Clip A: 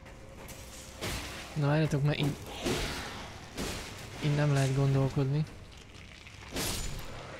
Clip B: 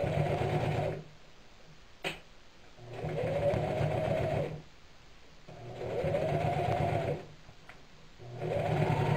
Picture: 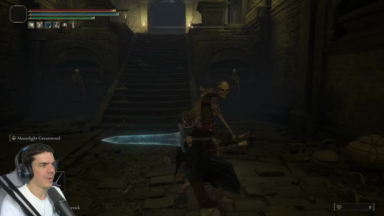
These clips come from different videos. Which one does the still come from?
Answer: A